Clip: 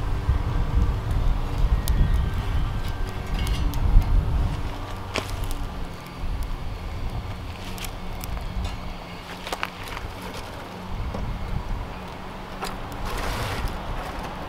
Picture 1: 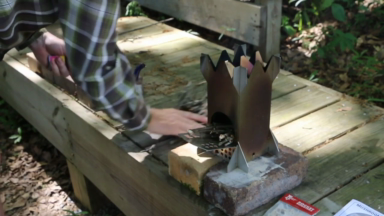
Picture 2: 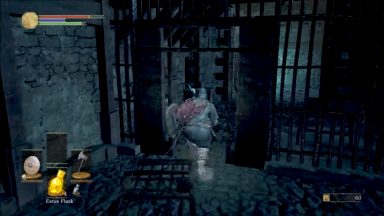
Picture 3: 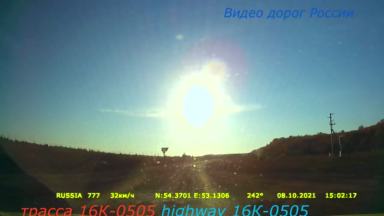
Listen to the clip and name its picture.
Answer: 1